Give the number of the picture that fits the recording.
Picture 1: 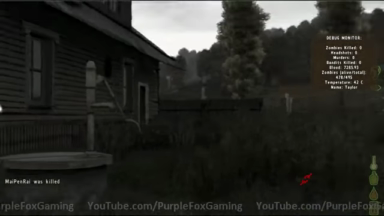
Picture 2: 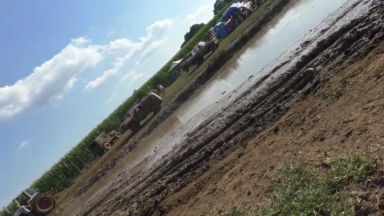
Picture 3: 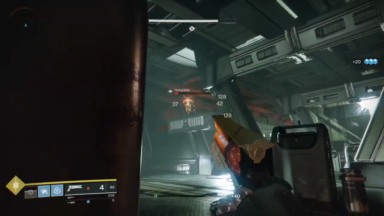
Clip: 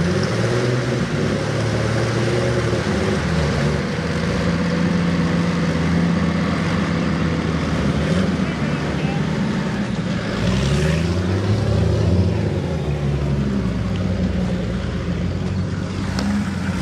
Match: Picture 2